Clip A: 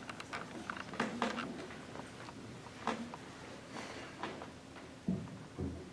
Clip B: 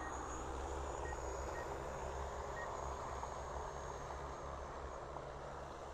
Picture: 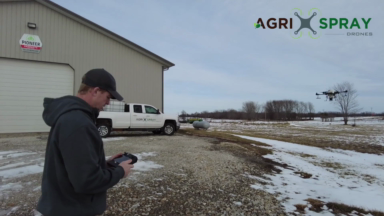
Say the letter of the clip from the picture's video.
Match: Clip B